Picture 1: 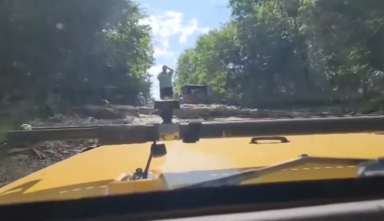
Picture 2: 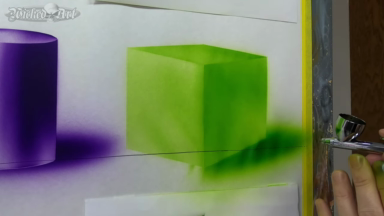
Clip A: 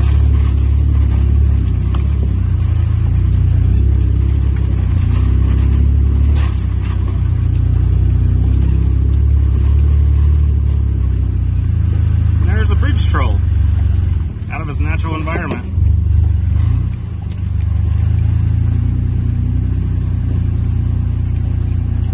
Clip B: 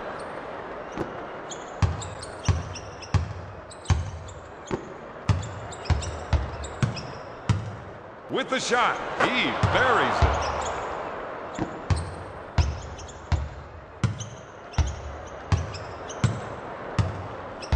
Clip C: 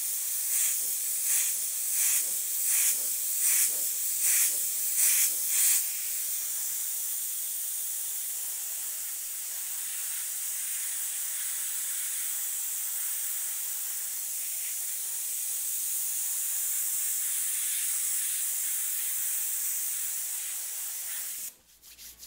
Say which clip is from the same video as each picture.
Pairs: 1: A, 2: C